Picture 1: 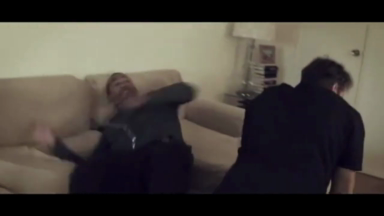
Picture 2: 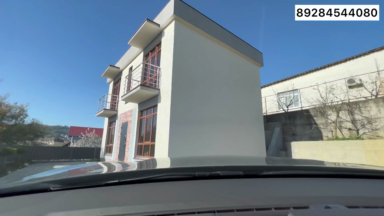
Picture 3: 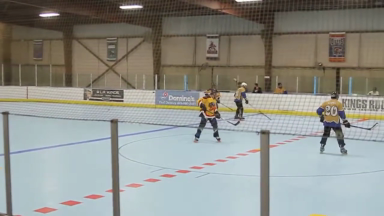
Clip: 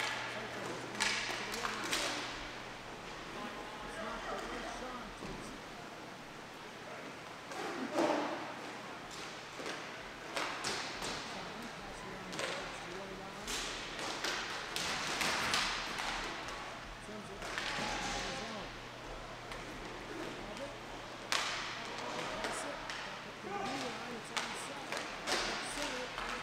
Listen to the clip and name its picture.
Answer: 3